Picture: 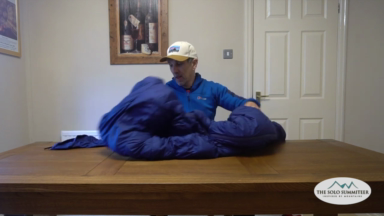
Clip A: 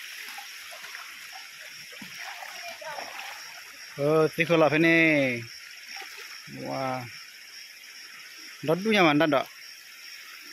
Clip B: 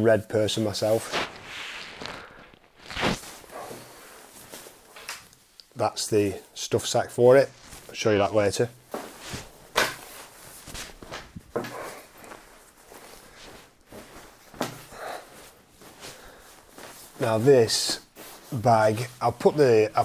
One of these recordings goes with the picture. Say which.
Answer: B